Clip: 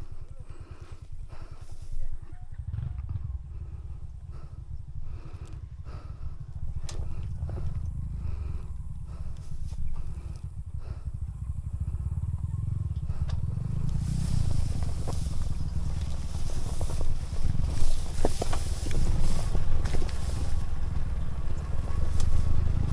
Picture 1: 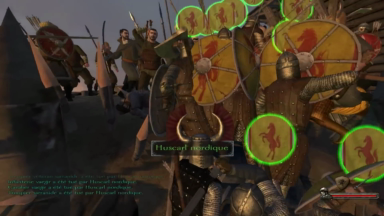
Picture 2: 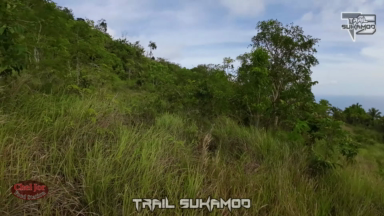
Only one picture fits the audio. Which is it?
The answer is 2